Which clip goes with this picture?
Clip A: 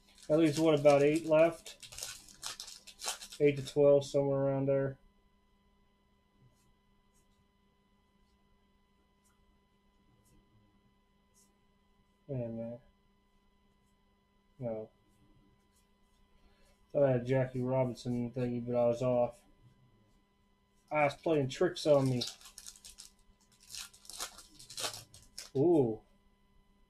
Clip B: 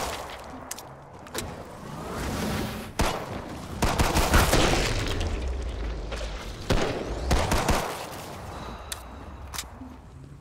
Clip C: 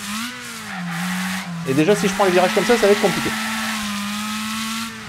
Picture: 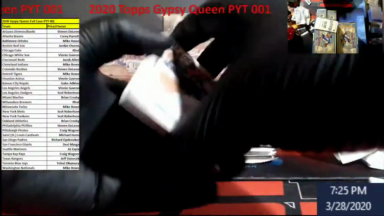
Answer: A